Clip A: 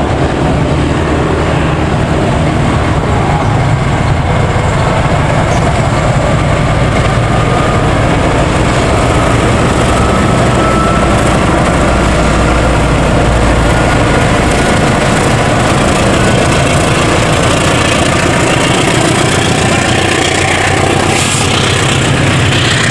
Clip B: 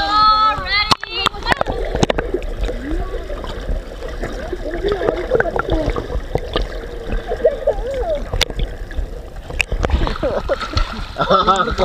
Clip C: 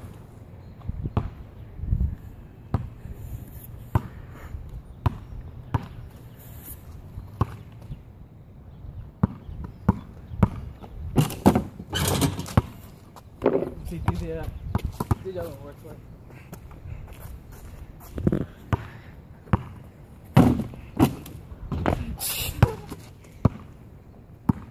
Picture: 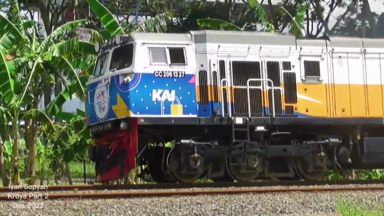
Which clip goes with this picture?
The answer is A